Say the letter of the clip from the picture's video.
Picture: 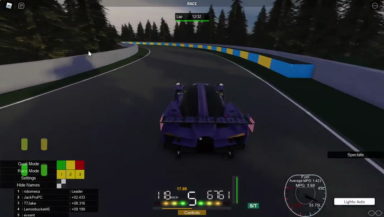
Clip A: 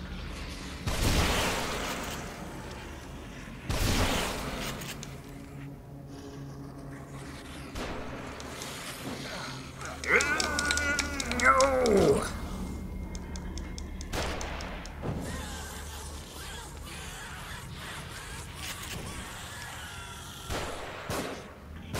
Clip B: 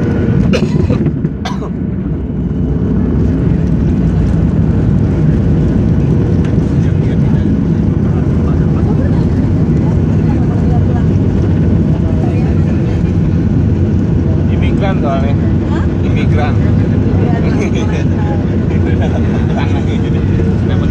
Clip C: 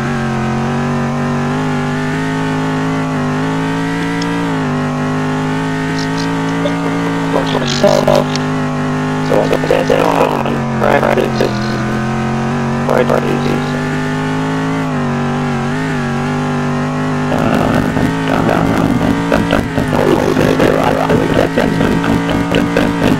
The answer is C